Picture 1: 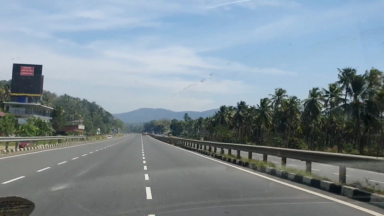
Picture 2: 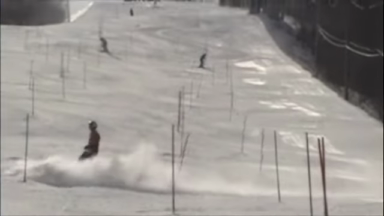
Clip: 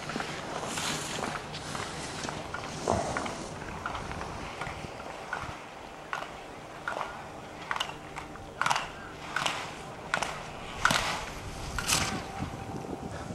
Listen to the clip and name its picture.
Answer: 2